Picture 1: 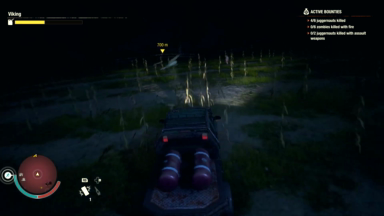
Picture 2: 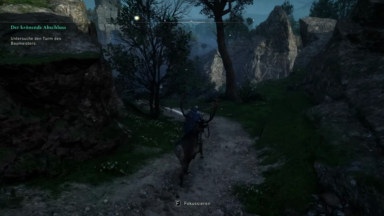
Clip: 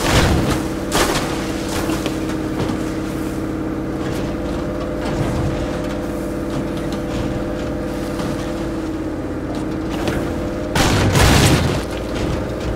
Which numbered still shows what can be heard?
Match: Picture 1